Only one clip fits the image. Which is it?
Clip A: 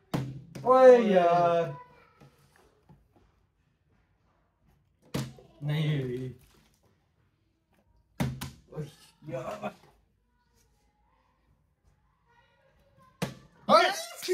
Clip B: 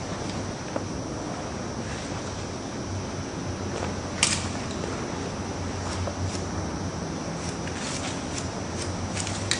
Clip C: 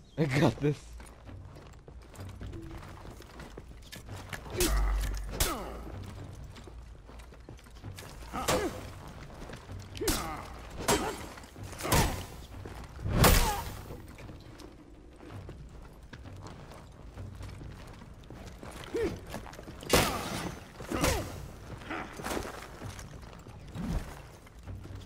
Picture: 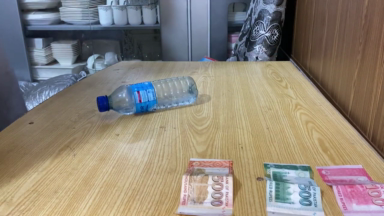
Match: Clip A